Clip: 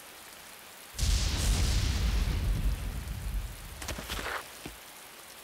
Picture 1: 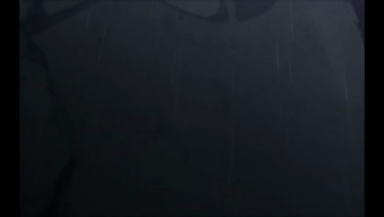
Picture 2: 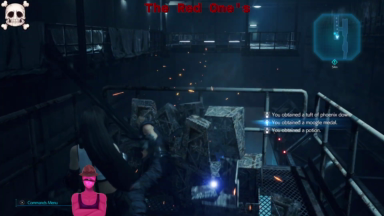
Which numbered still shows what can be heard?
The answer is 1